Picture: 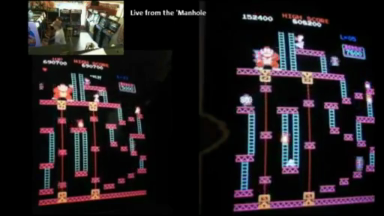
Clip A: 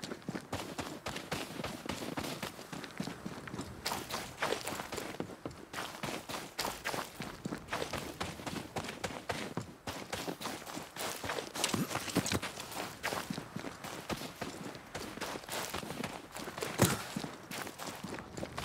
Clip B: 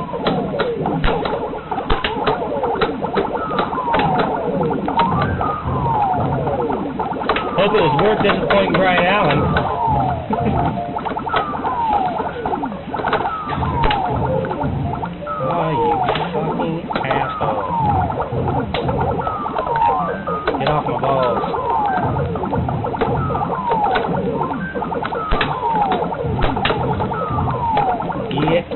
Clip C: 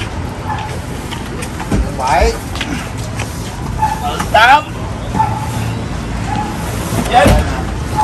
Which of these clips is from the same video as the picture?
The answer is B